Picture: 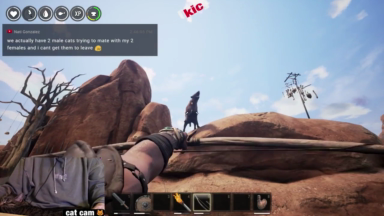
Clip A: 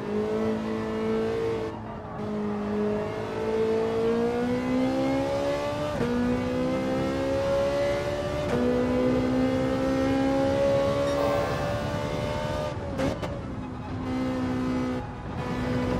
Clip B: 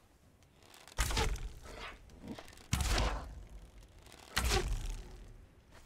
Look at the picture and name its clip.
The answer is B